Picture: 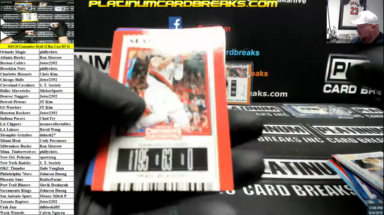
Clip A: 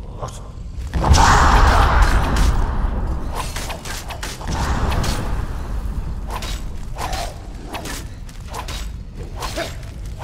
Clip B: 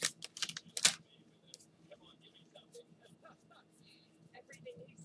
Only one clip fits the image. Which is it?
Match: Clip B